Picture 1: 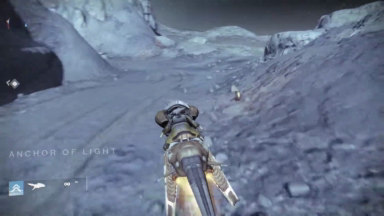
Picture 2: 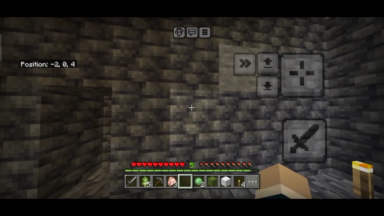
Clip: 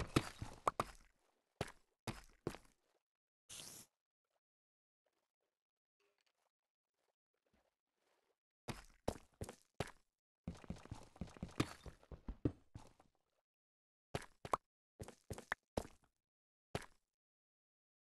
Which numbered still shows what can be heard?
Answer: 2